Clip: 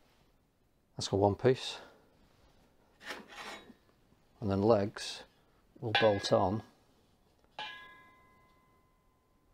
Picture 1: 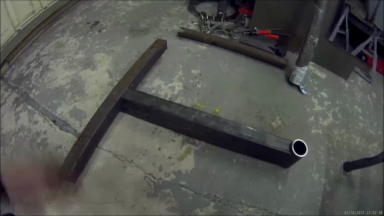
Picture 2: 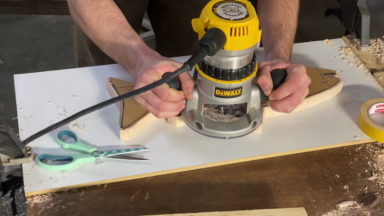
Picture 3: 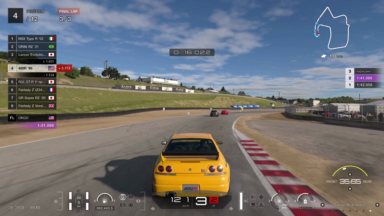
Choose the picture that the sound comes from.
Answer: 1